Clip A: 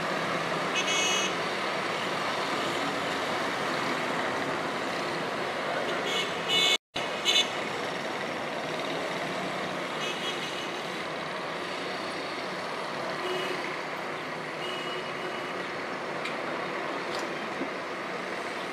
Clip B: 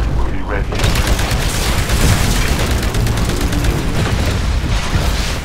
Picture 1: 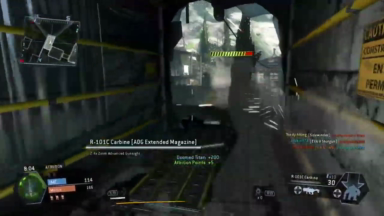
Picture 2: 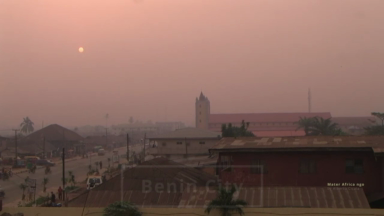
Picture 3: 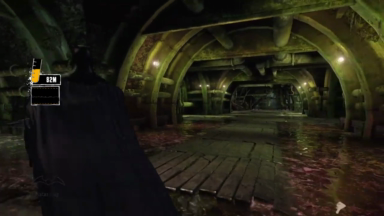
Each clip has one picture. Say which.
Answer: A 2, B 1